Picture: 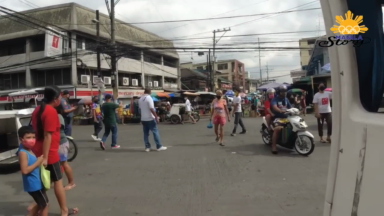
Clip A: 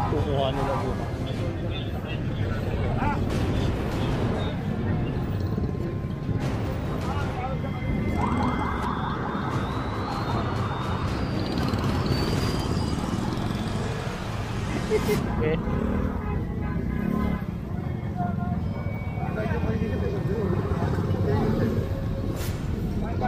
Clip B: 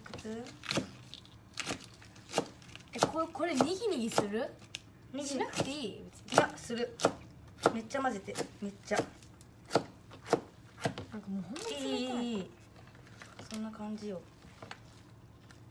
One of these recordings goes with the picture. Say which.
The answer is A